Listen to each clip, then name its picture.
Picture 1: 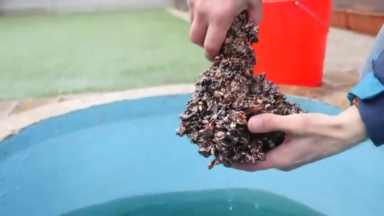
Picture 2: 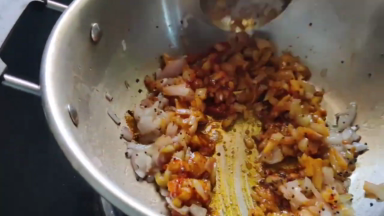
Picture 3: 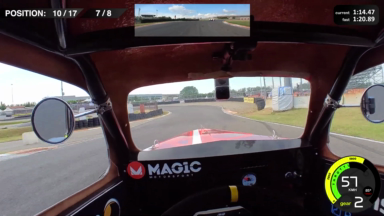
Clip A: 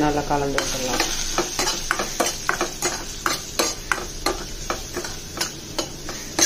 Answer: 2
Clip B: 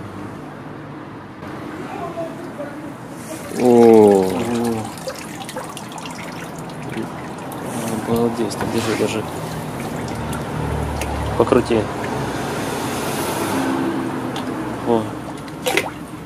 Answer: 1